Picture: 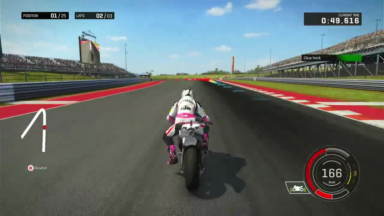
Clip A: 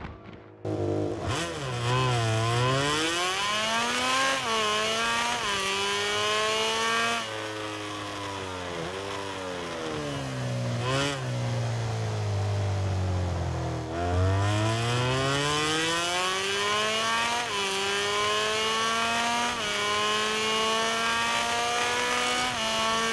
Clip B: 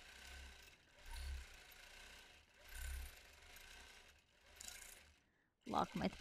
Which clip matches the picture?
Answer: A